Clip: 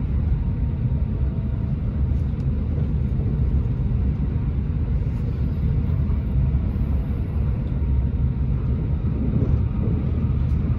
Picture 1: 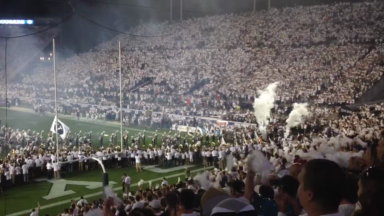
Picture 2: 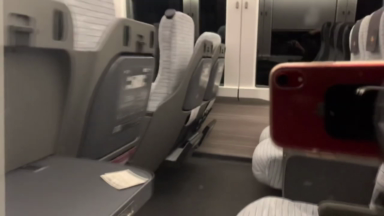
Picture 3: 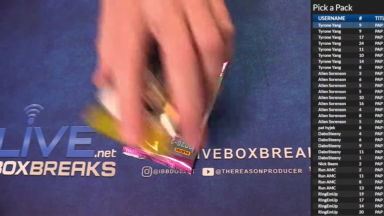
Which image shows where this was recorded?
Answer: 2